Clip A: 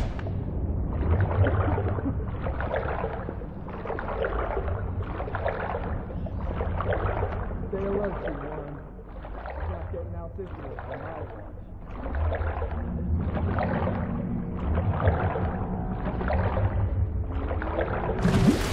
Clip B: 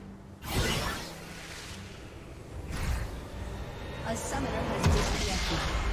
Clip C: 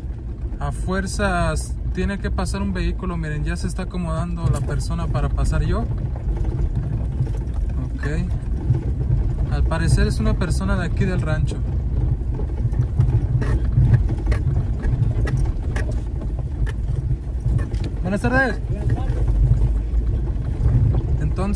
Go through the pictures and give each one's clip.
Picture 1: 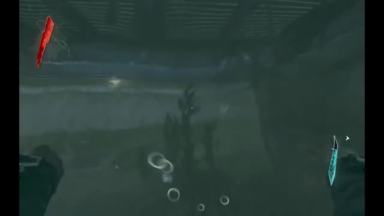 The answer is A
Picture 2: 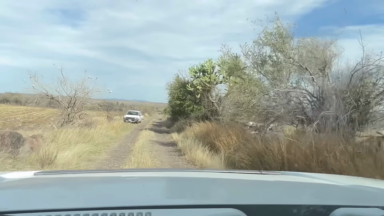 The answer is C